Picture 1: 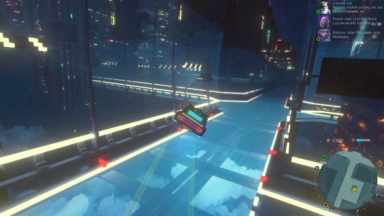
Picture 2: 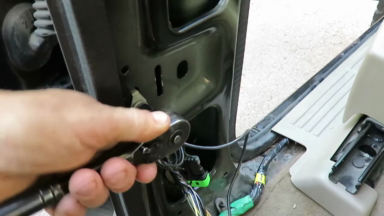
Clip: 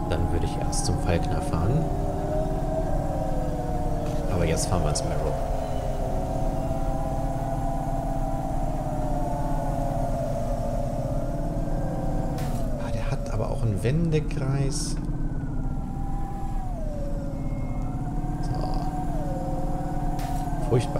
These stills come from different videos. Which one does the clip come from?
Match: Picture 1